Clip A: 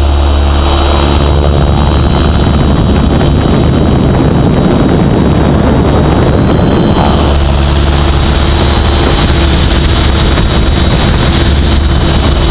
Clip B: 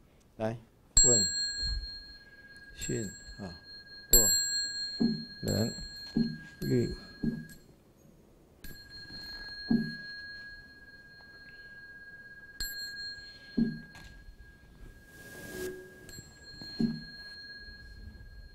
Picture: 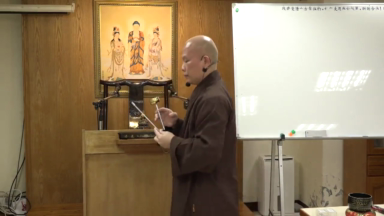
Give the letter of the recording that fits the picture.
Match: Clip B